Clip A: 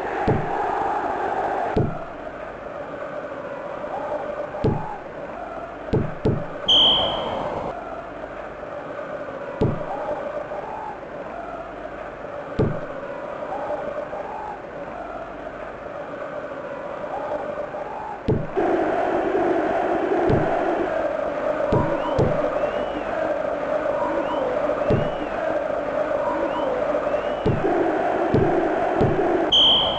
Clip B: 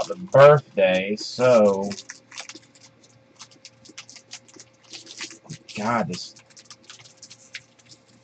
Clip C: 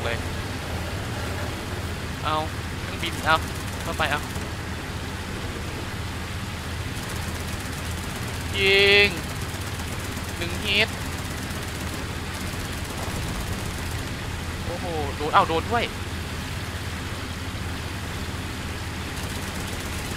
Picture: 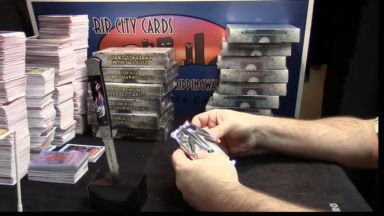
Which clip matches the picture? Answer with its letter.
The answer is B